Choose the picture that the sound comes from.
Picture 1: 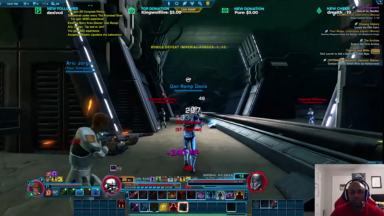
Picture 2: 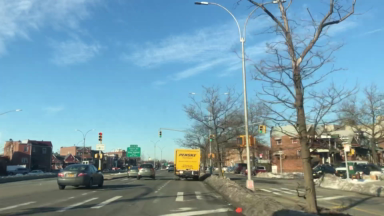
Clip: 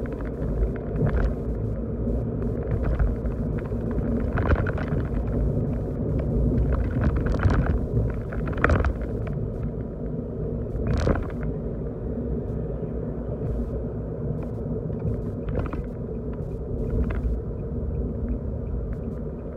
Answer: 2